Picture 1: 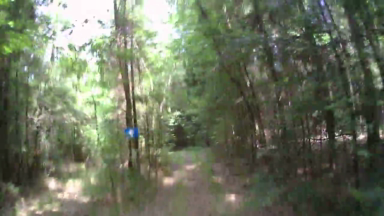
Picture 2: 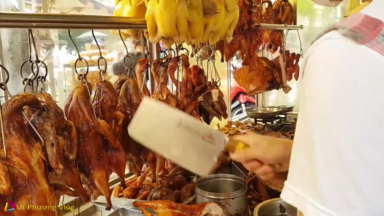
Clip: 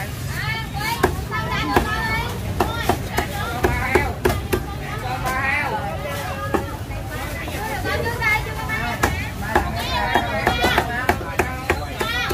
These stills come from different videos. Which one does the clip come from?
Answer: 2